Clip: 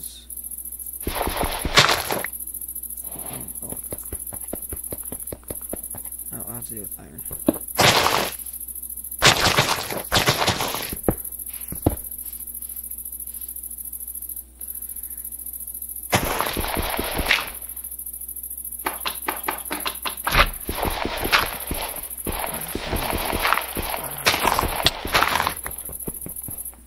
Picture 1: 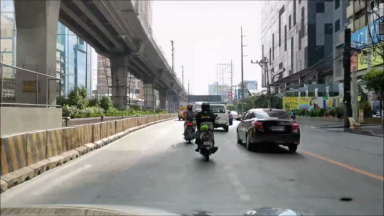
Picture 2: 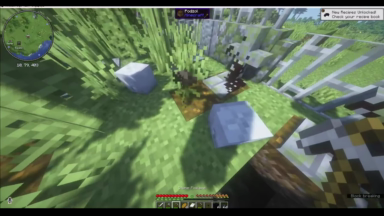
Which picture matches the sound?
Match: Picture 2